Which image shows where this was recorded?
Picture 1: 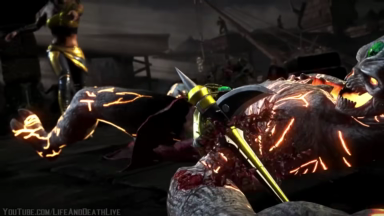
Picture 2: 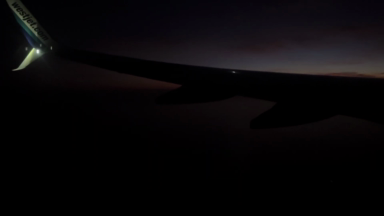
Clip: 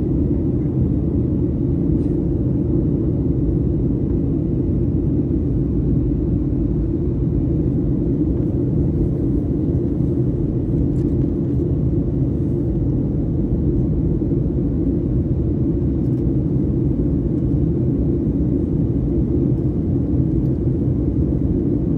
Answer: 2